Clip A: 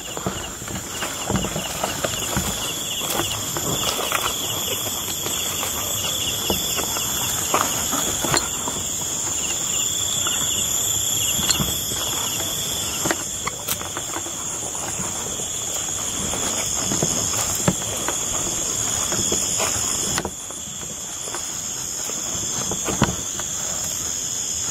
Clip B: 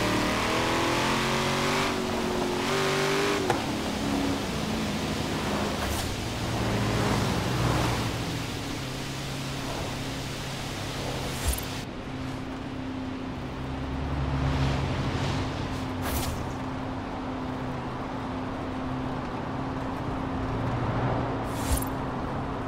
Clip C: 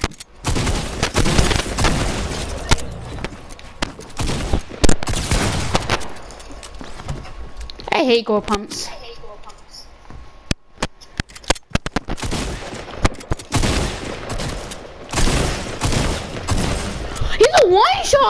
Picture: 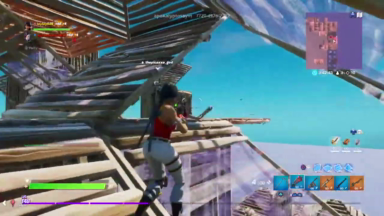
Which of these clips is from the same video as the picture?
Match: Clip C